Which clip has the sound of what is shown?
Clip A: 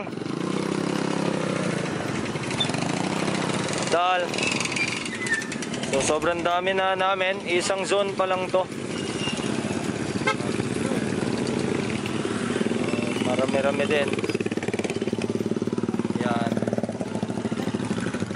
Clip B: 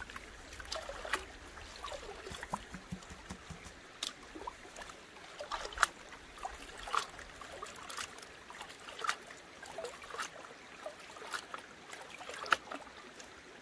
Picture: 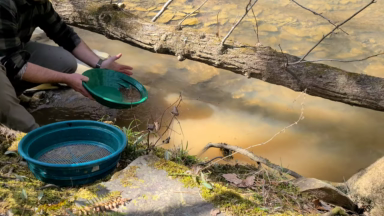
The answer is B